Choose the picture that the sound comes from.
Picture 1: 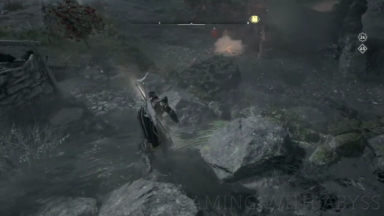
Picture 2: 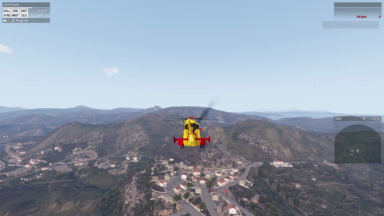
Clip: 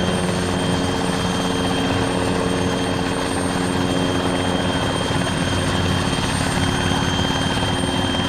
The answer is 2